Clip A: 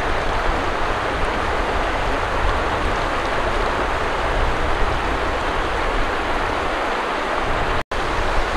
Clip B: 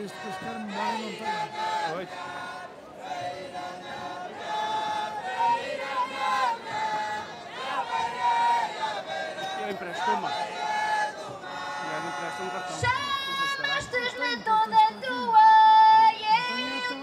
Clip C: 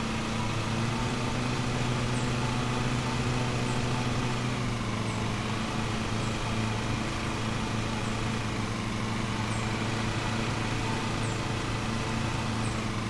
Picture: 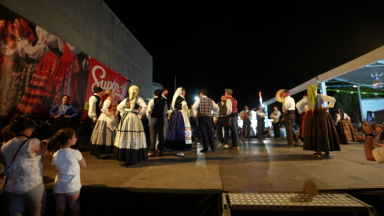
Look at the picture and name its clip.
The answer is B